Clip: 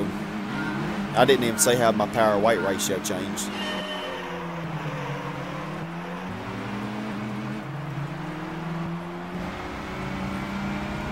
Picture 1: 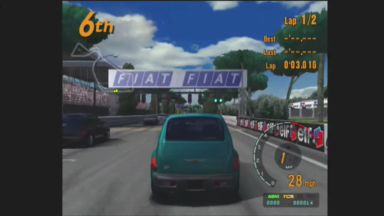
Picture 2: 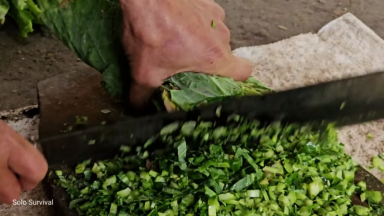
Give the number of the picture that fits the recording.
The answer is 1